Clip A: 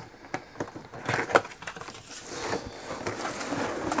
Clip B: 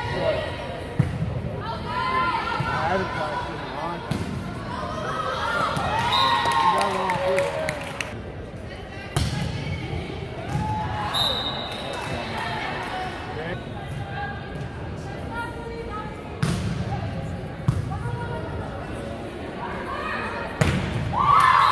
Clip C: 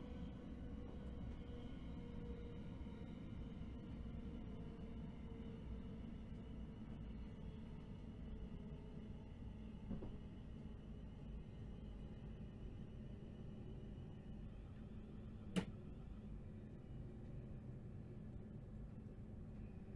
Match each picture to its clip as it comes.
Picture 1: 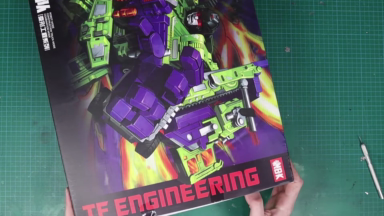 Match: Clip A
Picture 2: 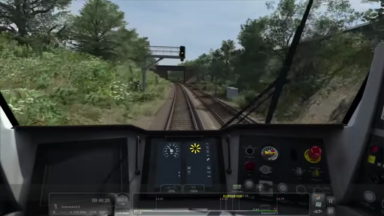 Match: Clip C